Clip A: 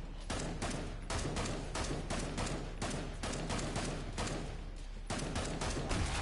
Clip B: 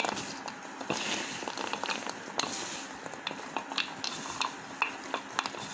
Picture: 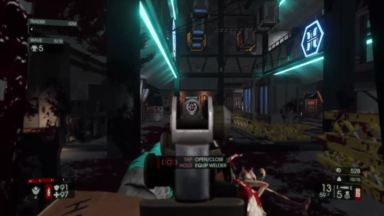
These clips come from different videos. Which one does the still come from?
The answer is A